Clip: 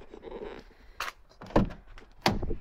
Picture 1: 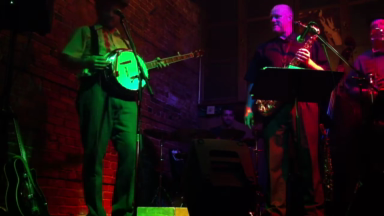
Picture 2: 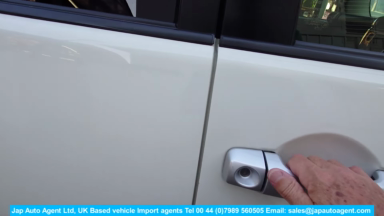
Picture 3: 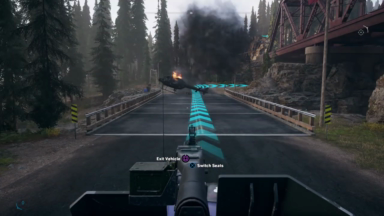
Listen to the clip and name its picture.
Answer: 2